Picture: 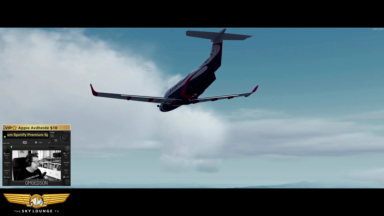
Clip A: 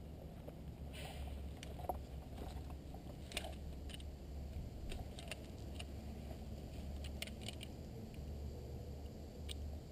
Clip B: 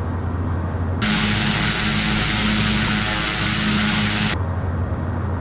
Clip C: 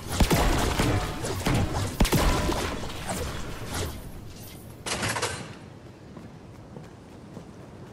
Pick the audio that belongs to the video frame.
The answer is B